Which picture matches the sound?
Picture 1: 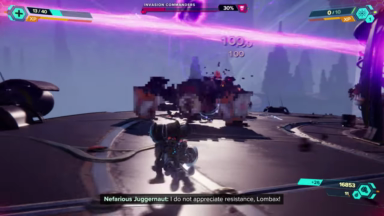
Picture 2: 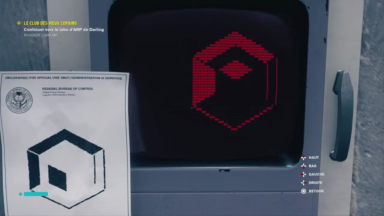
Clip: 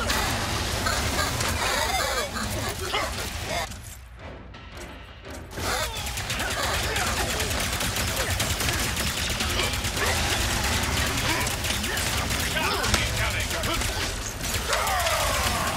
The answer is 1